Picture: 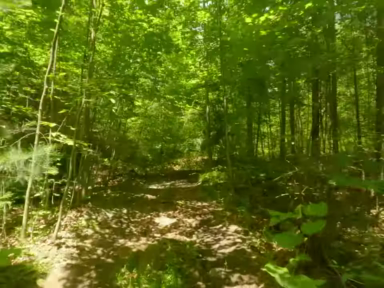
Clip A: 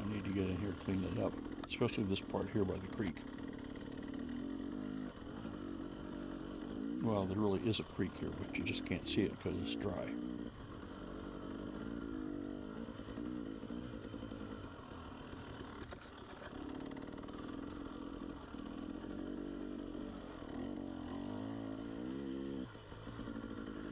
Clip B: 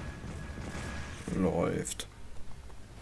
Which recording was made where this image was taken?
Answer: A